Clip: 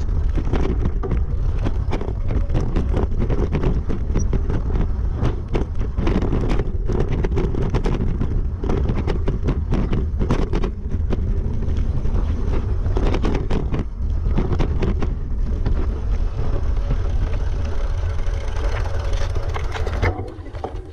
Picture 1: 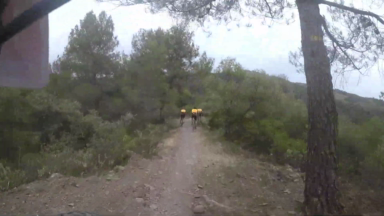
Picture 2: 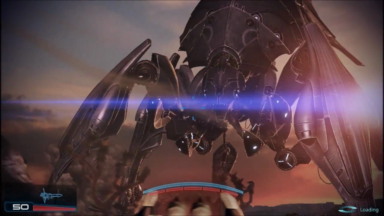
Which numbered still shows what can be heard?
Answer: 1